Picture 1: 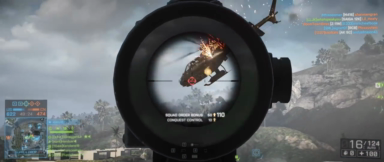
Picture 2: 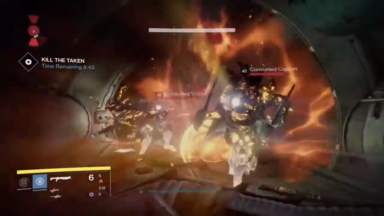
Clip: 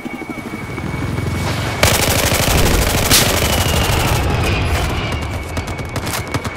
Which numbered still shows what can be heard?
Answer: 1